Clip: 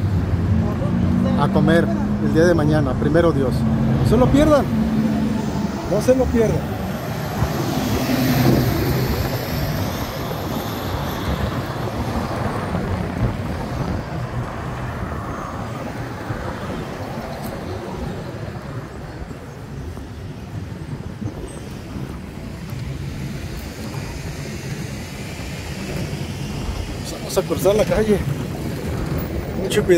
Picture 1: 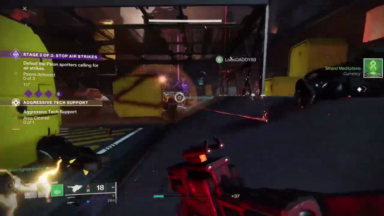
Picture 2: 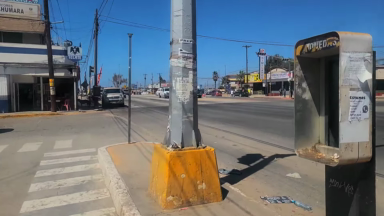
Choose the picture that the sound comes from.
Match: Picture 2